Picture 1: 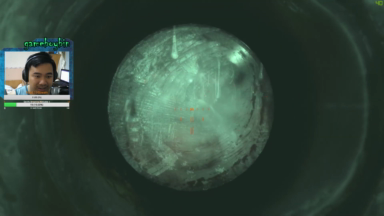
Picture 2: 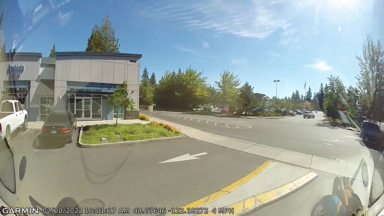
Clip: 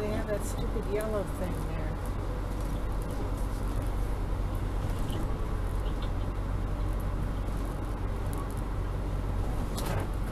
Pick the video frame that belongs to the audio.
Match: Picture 2